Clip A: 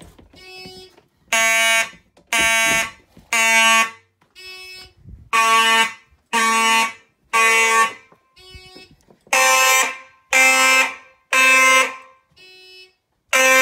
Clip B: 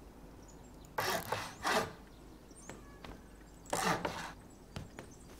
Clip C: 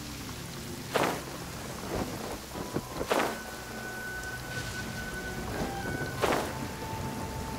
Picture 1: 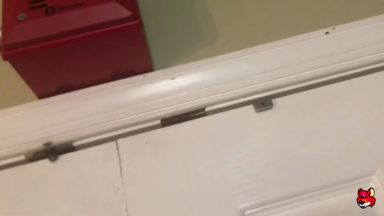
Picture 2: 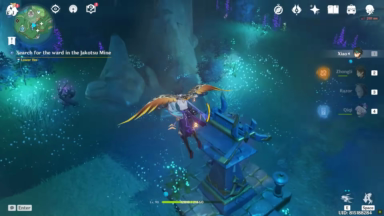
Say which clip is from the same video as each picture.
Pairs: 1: A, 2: C